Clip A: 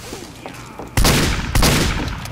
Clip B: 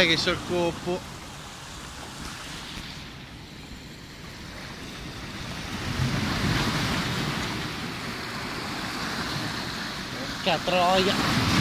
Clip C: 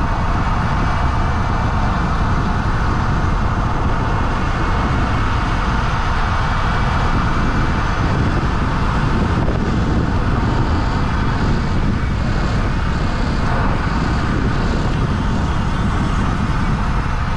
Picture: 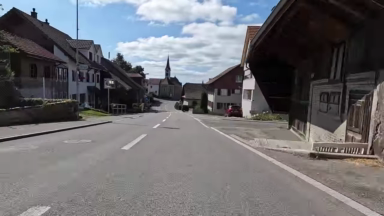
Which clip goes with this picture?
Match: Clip C